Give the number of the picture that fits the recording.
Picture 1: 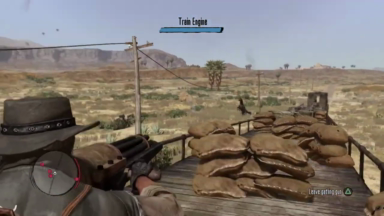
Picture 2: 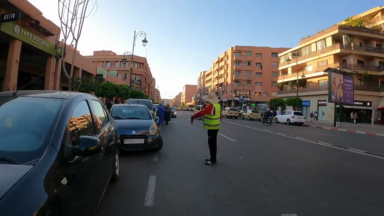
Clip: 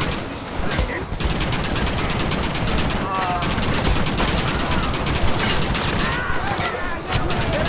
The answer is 1